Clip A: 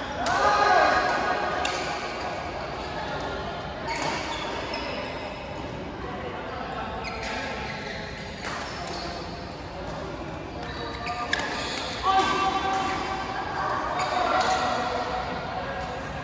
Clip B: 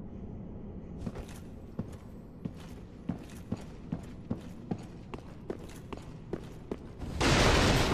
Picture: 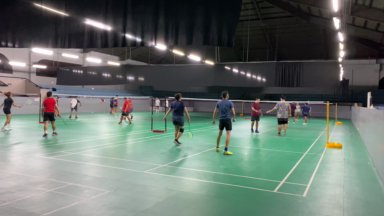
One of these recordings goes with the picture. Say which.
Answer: A